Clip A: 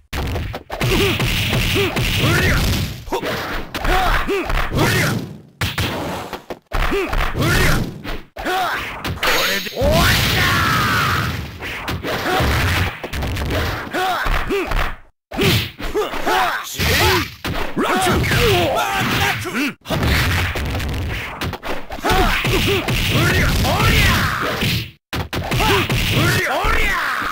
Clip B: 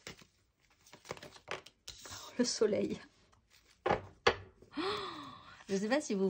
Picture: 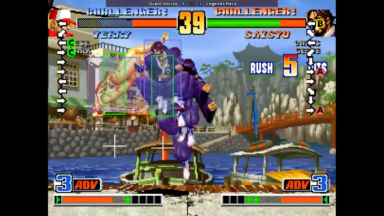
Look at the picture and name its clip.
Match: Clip A